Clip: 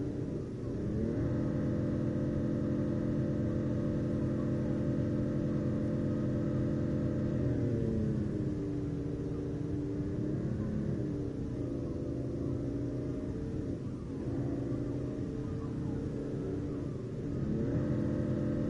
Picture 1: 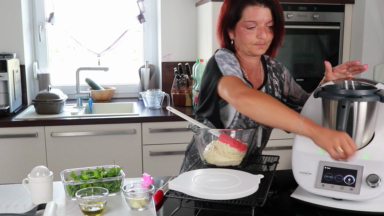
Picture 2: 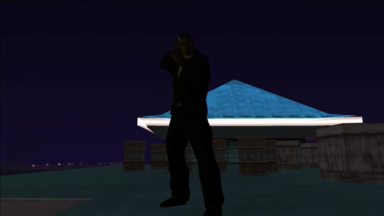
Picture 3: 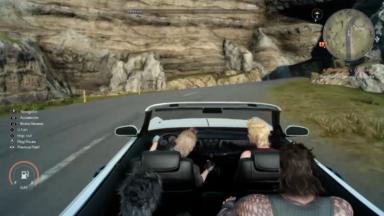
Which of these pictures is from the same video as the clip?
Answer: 3